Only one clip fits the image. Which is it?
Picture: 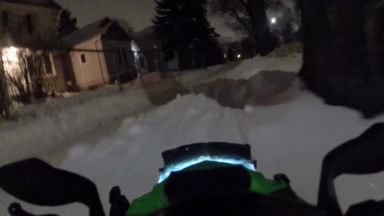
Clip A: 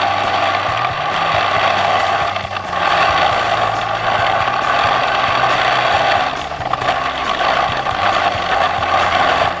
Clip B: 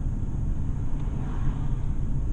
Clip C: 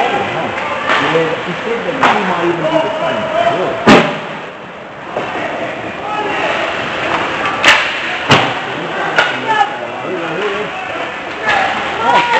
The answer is A